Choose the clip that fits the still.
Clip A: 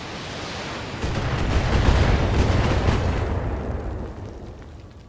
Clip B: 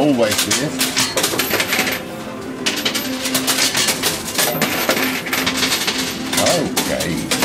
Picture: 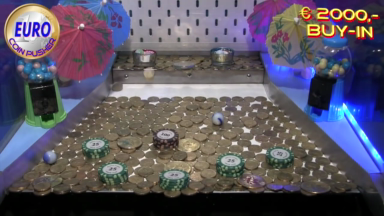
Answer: B